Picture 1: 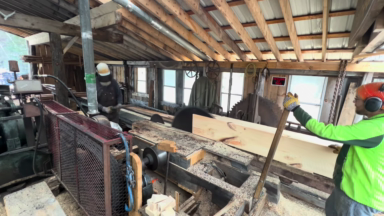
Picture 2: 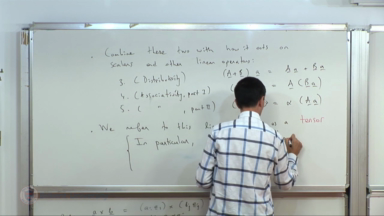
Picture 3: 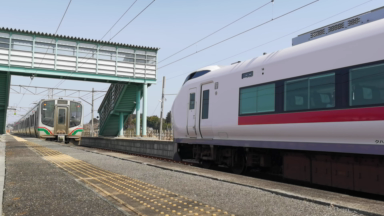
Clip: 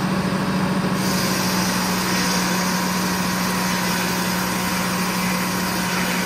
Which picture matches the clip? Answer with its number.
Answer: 1